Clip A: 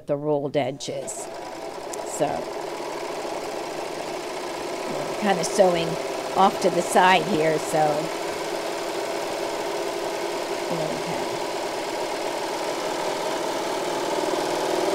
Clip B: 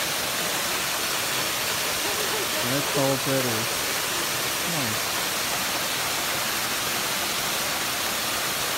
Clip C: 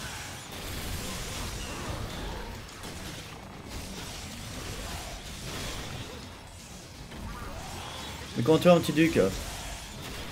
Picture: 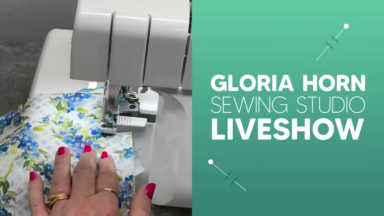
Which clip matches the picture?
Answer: A